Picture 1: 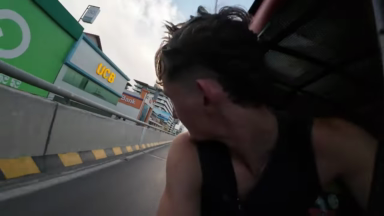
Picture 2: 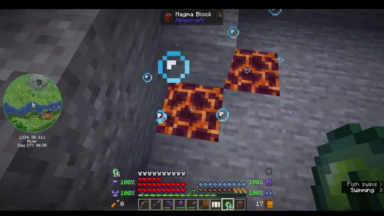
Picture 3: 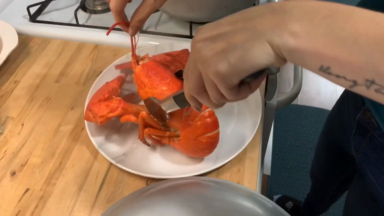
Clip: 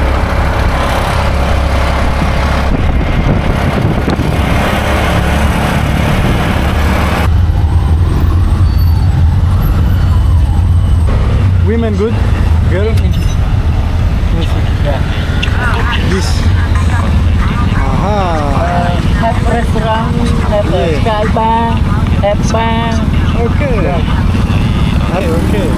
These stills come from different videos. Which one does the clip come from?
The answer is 1